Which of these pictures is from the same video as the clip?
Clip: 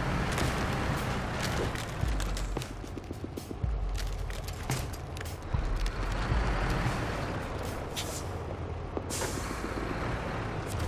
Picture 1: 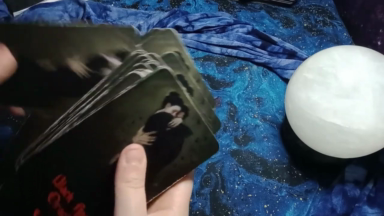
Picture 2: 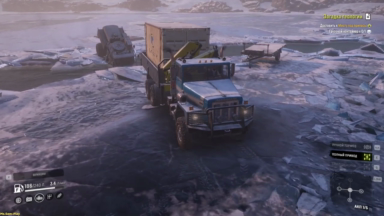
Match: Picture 2